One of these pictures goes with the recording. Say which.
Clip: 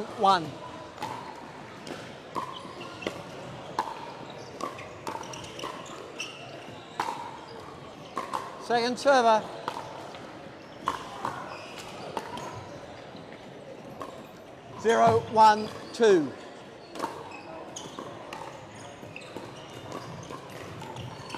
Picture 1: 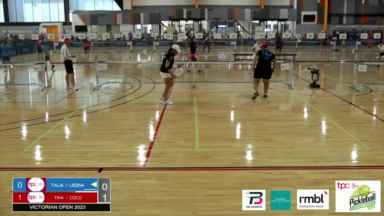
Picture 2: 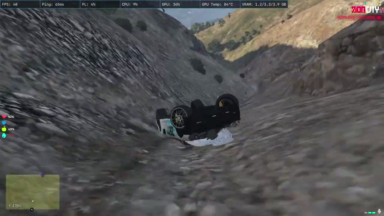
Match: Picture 1